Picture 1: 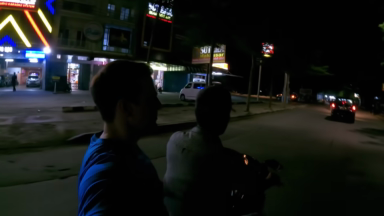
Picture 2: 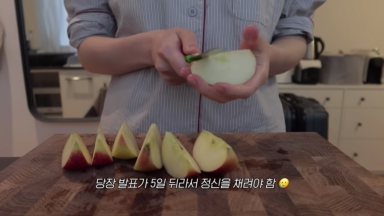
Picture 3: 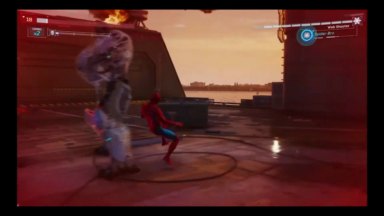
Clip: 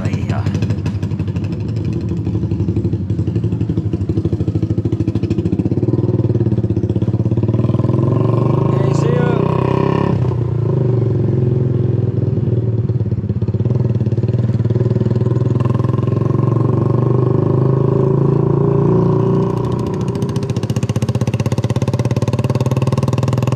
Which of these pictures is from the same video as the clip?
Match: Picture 1